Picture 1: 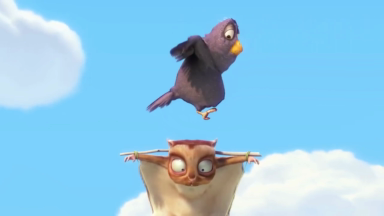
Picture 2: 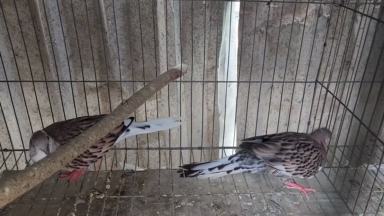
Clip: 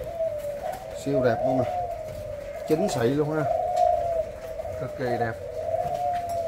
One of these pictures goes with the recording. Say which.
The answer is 2